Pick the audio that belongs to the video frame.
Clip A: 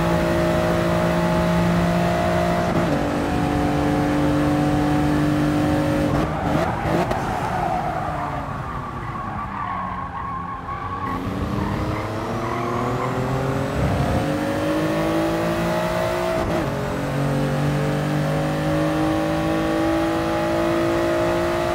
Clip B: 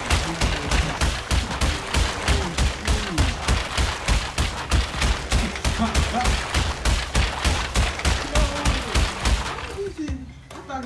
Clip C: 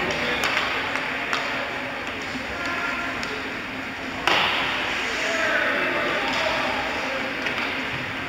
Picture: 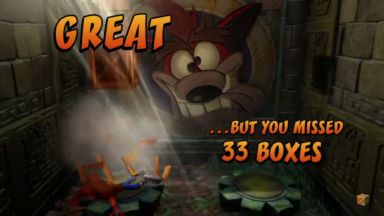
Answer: B